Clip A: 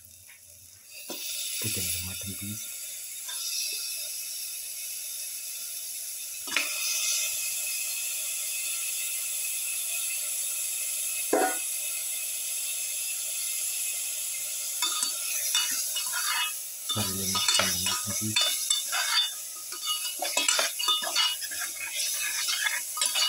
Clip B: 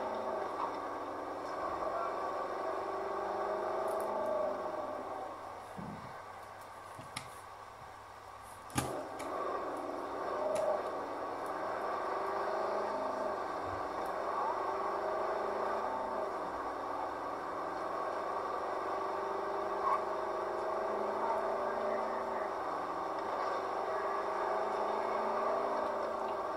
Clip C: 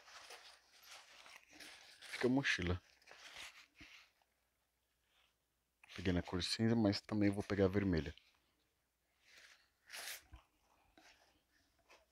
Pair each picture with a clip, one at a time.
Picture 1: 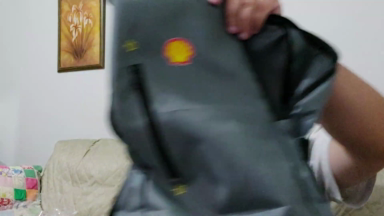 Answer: C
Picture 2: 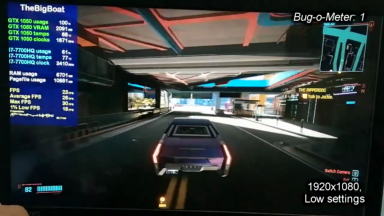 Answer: B